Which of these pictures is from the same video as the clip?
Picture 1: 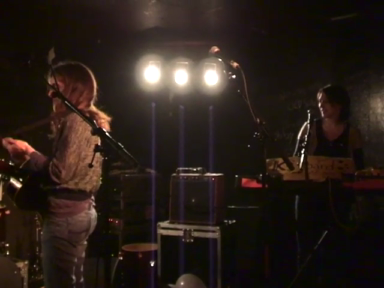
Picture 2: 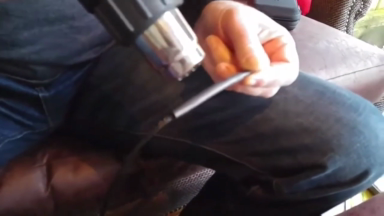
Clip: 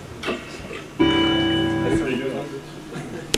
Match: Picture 1